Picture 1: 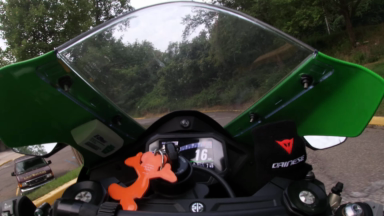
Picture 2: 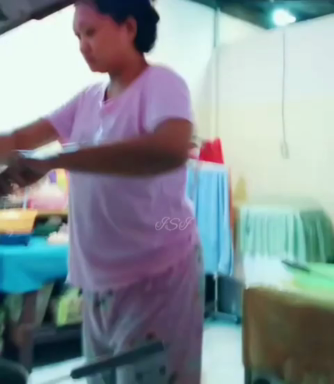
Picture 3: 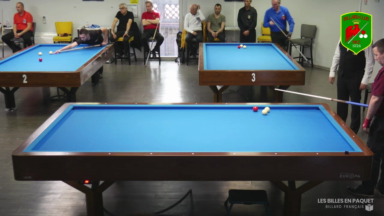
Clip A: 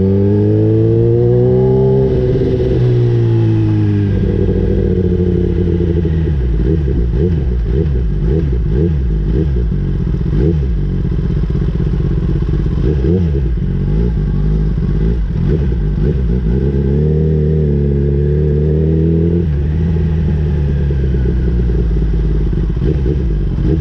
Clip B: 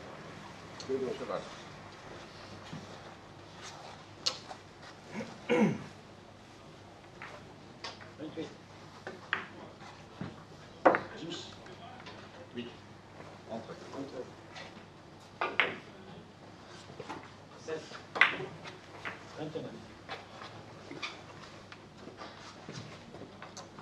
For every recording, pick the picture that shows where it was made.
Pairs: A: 1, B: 3